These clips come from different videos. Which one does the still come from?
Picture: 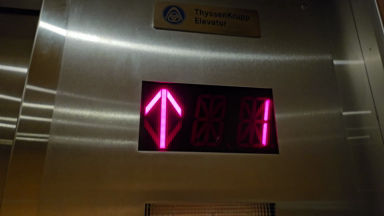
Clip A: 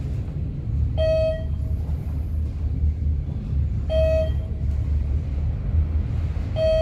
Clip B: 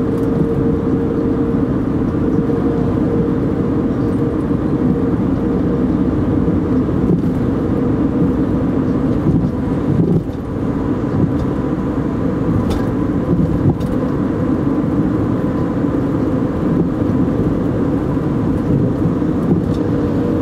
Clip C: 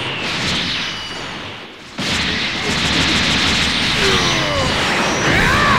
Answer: A